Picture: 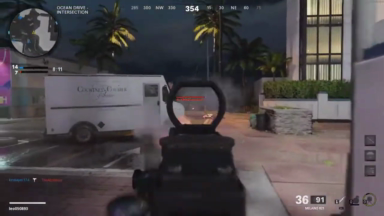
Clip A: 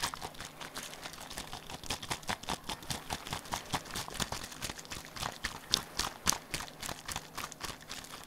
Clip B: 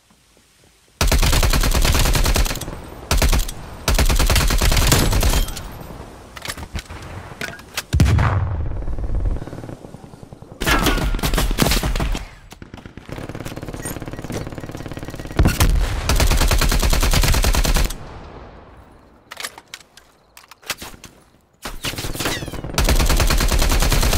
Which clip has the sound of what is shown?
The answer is B